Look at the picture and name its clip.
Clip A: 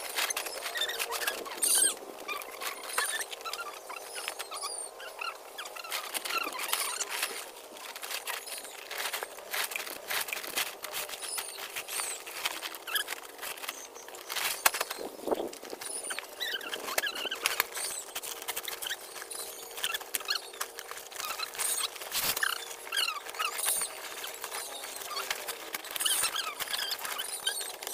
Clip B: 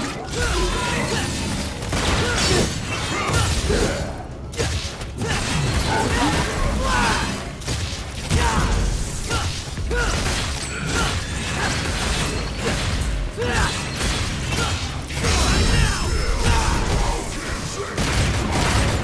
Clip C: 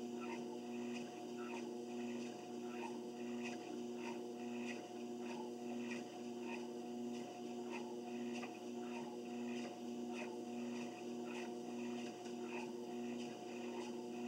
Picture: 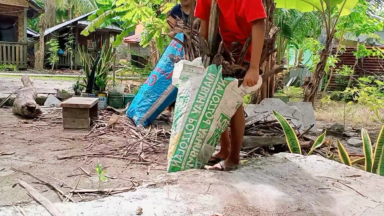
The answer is A